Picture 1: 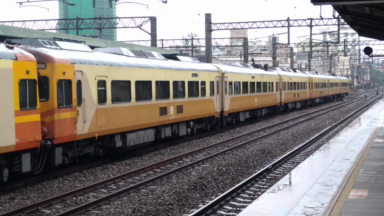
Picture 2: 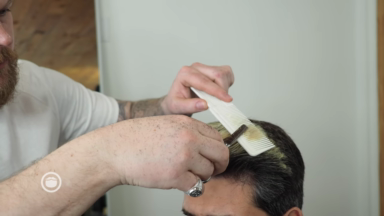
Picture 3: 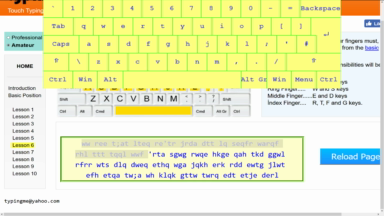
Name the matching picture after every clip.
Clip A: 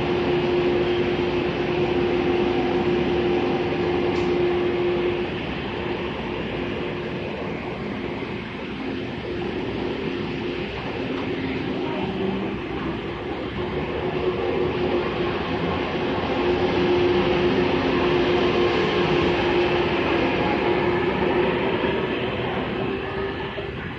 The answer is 1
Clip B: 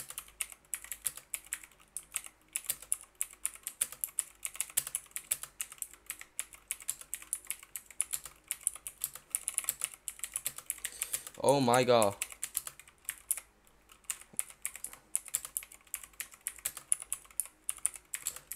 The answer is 3